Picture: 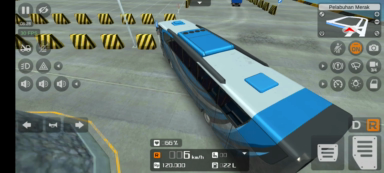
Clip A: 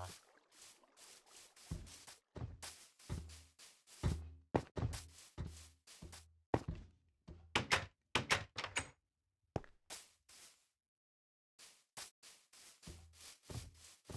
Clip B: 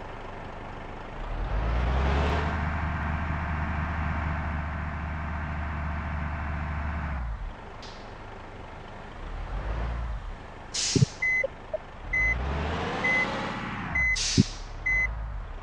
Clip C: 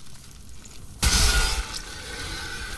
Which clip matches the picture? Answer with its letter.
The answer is B